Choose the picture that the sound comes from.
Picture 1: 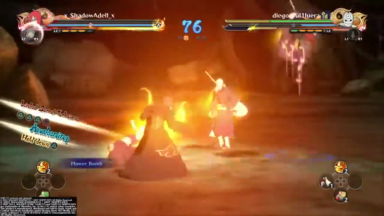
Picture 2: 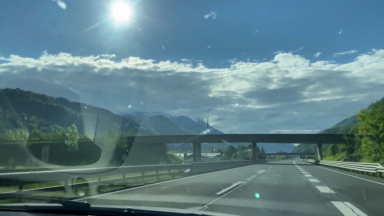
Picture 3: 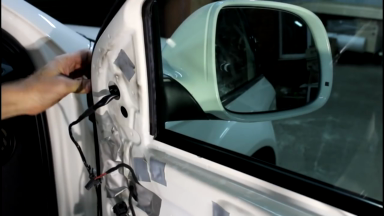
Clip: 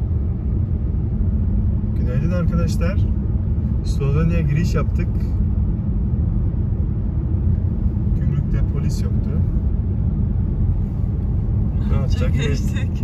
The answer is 2